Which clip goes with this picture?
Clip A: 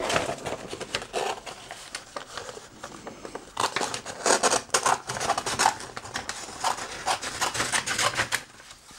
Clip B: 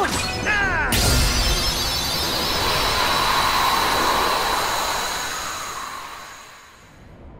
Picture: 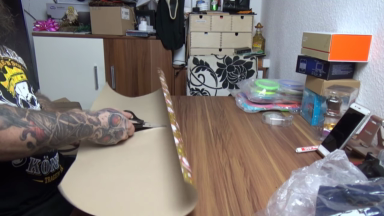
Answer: A